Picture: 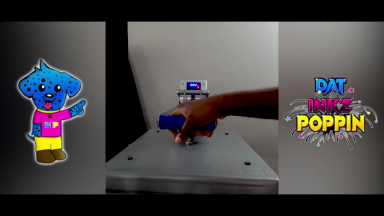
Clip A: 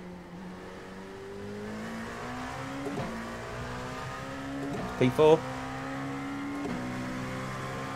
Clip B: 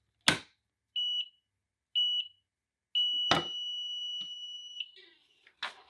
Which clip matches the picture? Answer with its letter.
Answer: B